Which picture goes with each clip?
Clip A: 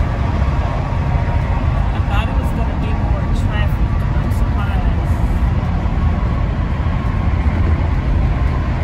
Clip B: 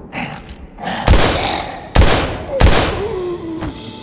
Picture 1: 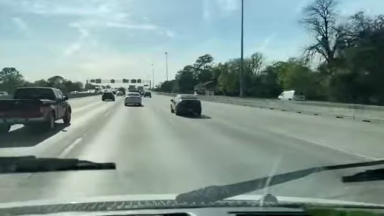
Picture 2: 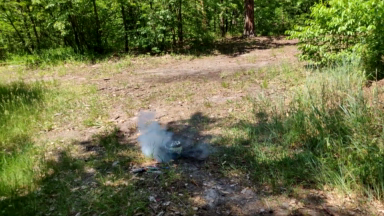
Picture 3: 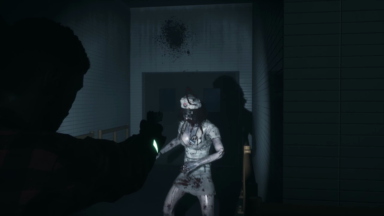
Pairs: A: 1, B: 3